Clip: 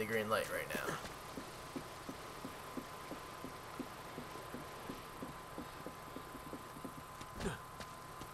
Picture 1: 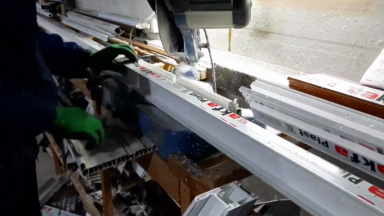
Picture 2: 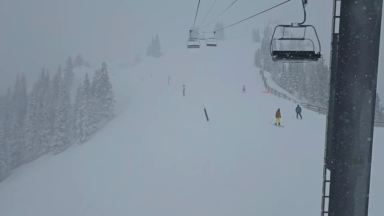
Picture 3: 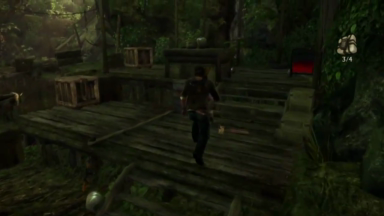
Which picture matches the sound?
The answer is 3